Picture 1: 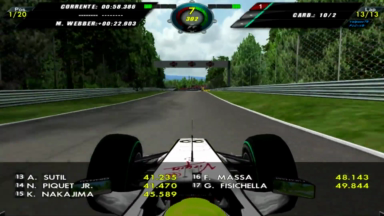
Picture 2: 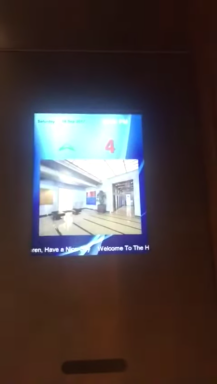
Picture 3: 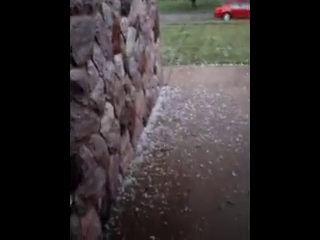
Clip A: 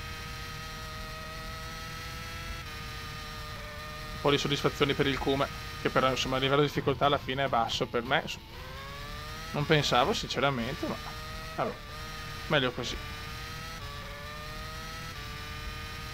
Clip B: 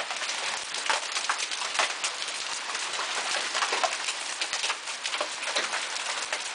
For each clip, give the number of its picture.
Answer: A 1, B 3